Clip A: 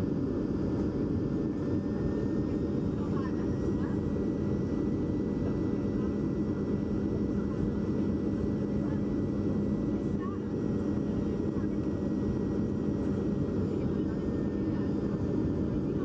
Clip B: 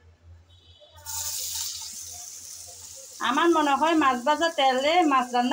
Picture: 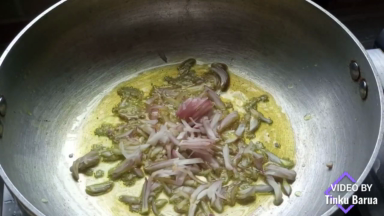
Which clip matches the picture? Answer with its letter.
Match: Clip B